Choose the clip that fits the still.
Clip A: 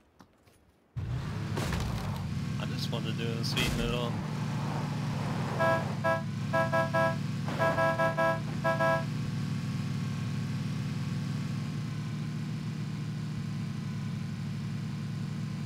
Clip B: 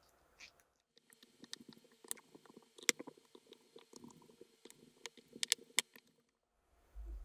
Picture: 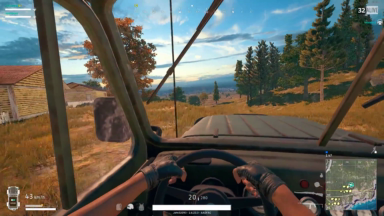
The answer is A